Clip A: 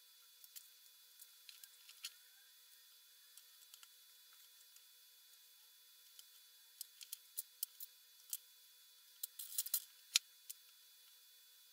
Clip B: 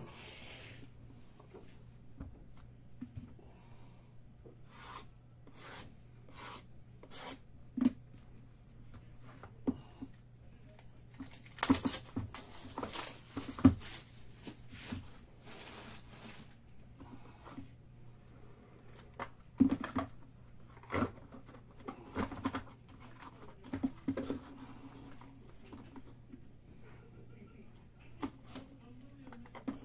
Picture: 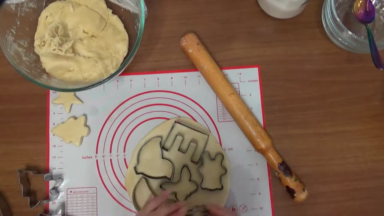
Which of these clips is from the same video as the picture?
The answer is A